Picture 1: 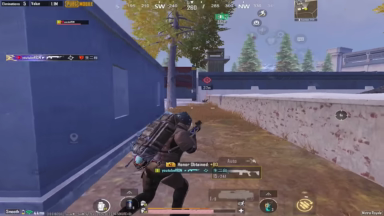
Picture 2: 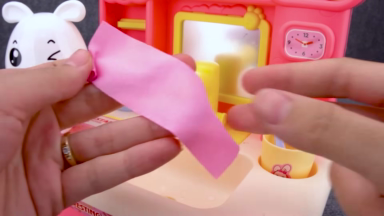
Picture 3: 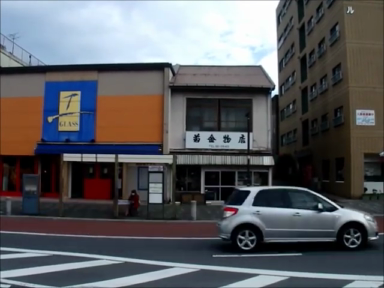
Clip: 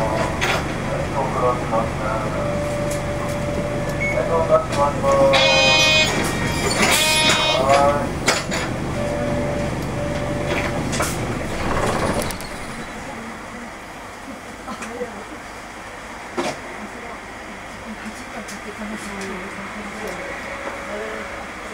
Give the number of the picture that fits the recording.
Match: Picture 3